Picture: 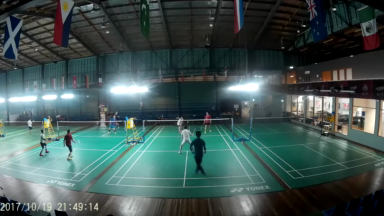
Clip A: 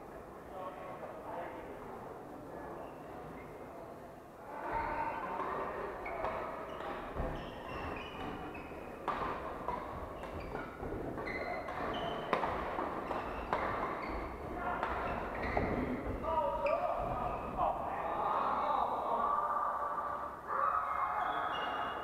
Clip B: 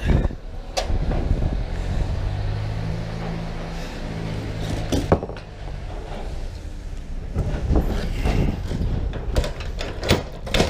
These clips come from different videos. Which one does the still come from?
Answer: A